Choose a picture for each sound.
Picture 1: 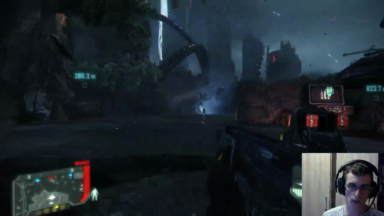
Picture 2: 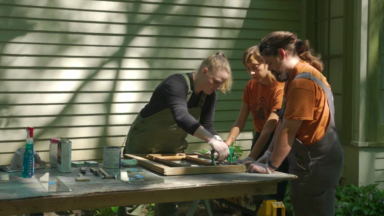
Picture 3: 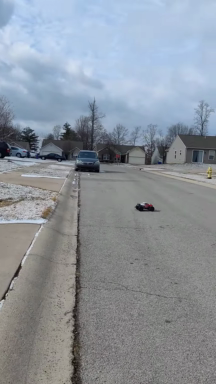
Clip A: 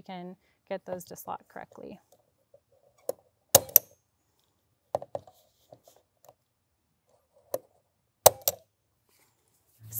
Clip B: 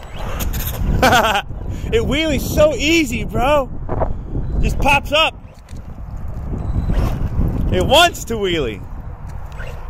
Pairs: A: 2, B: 3